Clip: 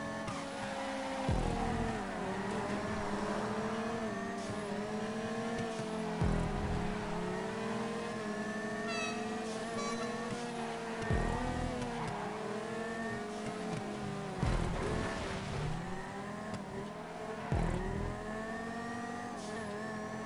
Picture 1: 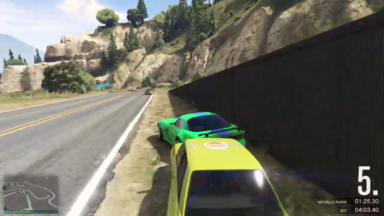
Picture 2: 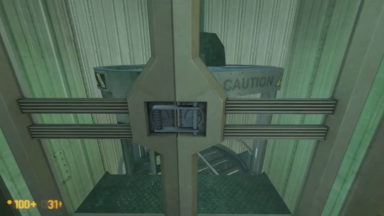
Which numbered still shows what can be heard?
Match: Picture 1